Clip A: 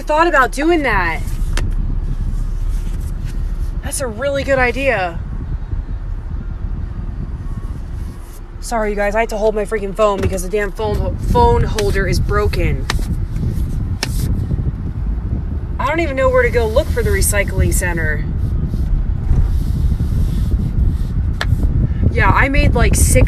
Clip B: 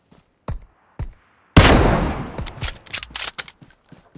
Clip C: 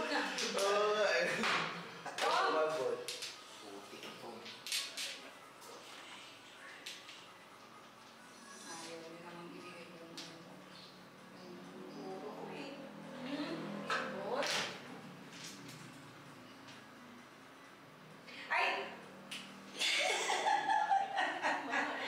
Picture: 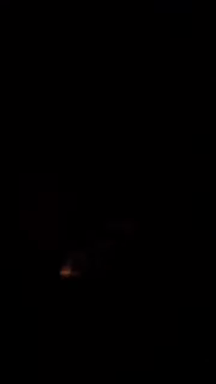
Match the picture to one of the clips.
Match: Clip A